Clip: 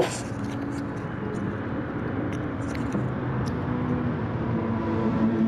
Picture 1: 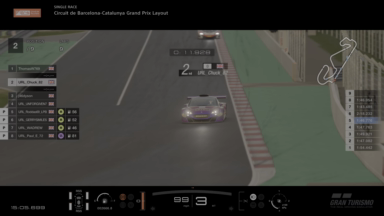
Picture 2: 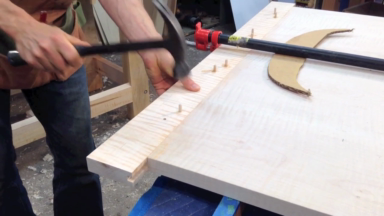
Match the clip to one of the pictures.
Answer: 1